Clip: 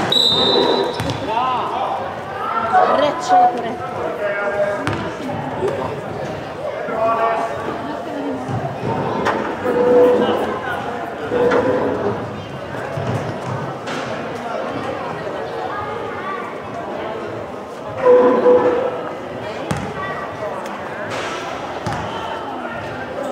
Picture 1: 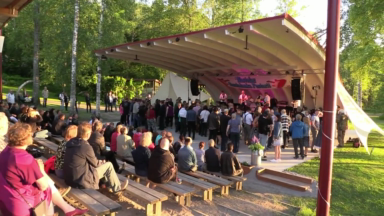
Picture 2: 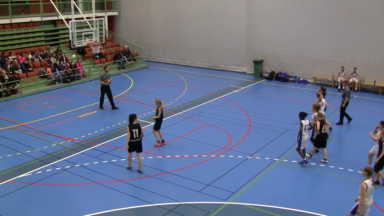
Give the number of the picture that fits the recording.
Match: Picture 2